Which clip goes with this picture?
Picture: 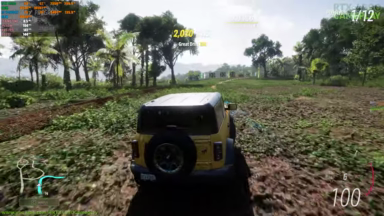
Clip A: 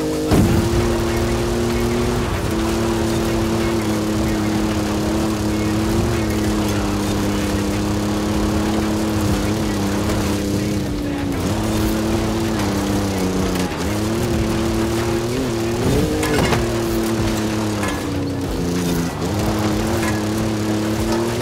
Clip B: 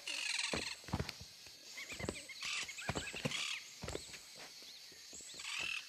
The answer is A